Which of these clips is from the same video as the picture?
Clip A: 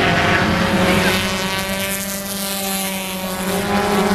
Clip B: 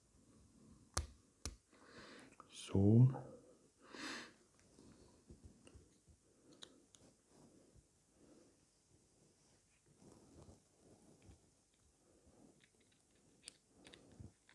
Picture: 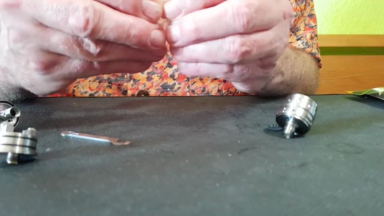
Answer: B